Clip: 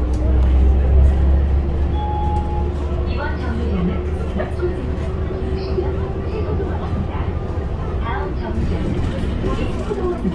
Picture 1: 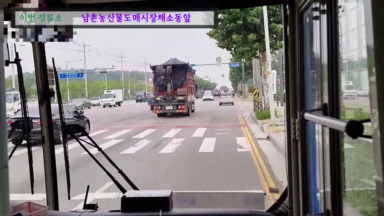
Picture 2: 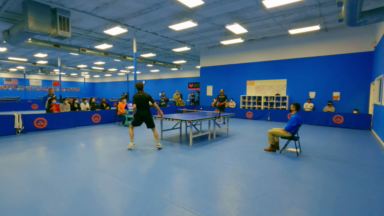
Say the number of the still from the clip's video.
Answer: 1